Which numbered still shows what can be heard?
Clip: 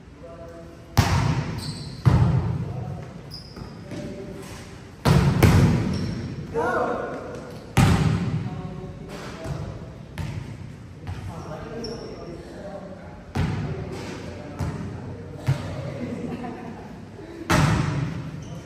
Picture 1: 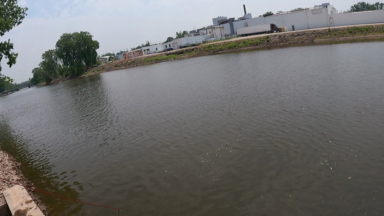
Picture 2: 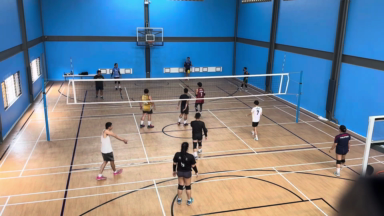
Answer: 2